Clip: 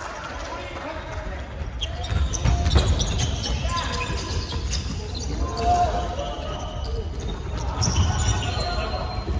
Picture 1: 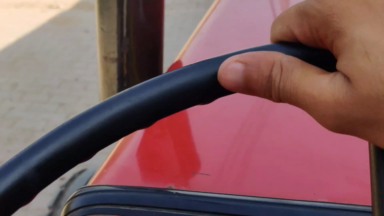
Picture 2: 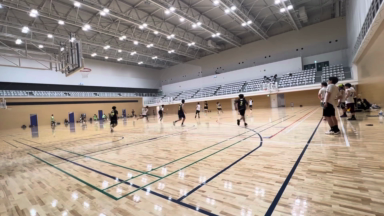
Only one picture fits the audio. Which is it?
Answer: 2